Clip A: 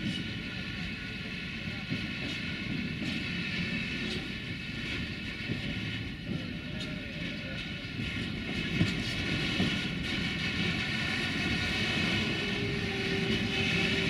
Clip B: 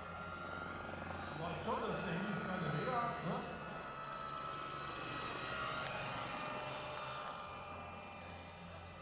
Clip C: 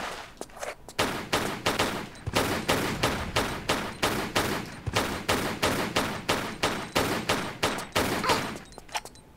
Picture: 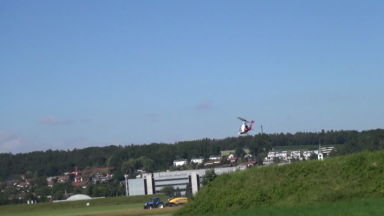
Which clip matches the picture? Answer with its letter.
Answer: B